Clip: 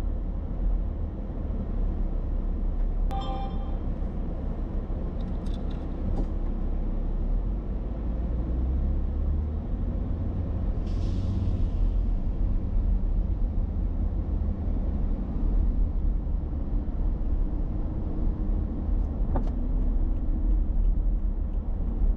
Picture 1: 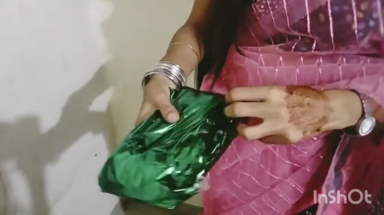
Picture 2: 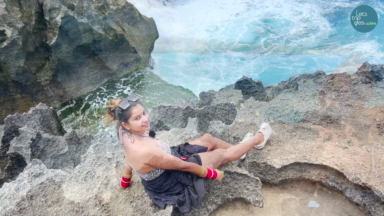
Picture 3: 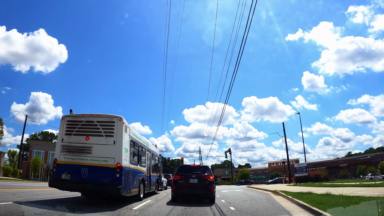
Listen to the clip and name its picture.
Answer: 3